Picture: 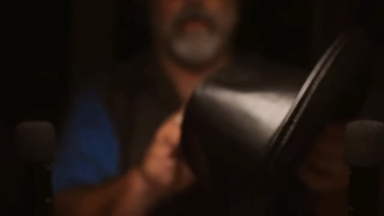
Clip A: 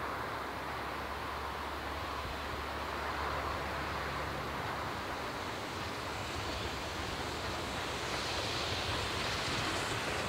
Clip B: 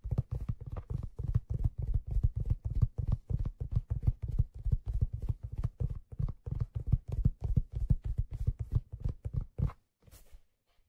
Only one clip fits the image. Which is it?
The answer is B